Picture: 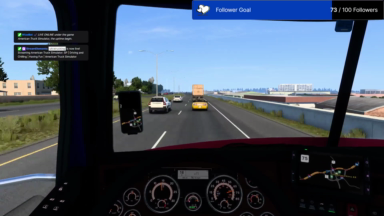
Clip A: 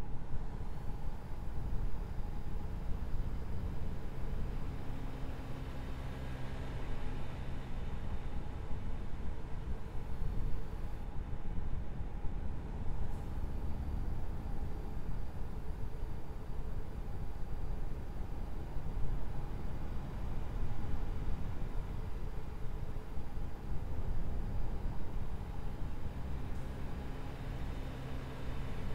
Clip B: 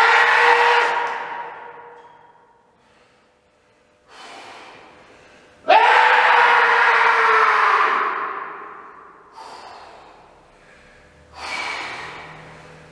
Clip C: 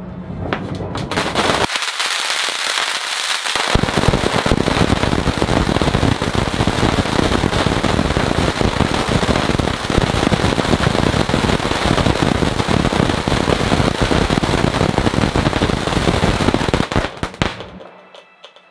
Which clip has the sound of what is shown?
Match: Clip A